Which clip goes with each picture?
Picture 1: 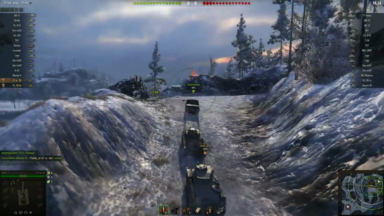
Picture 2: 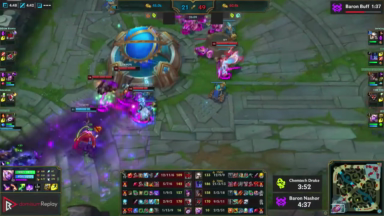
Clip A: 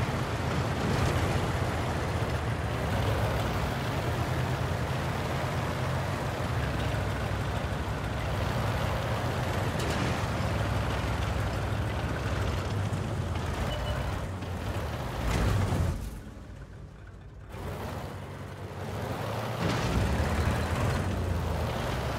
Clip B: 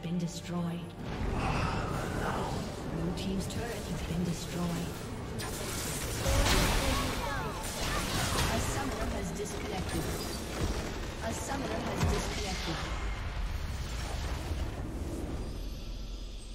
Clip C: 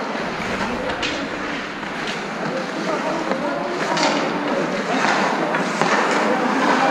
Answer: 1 A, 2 B